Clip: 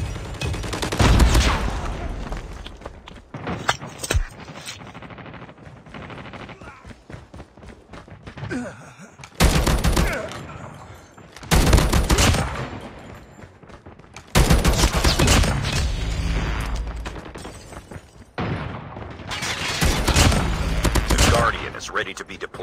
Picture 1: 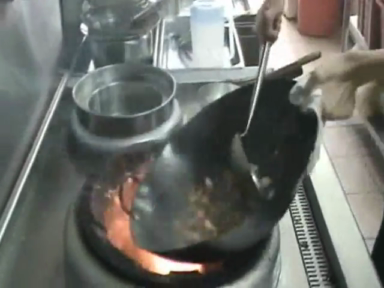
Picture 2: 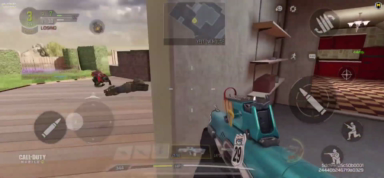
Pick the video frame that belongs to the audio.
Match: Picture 2